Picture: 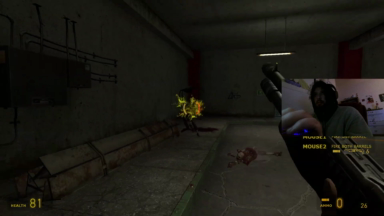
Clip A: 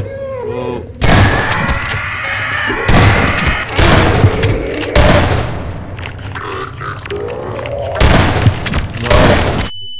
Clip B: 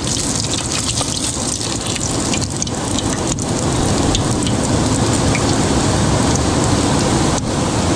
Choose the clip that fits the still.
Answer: A